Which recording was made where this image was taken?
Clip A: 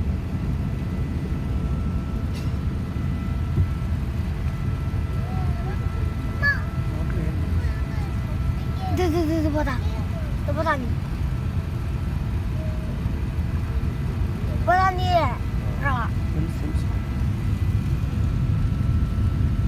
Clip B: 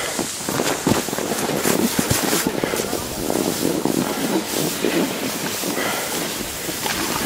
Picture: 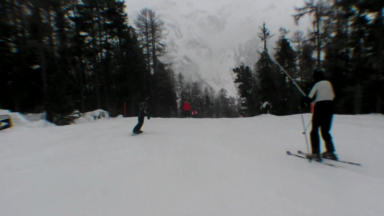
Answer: B